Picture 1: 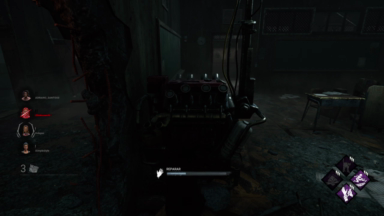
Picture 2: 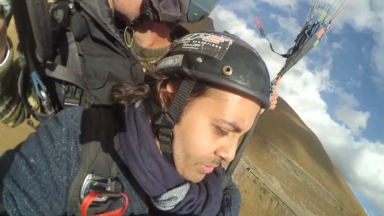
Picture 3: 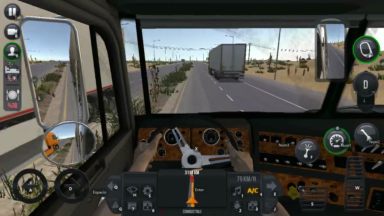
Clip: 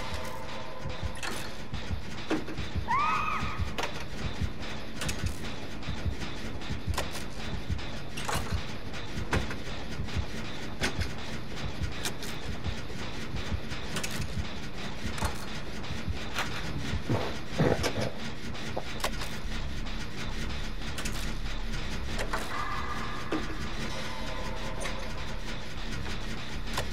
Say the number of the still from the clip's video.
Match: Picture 1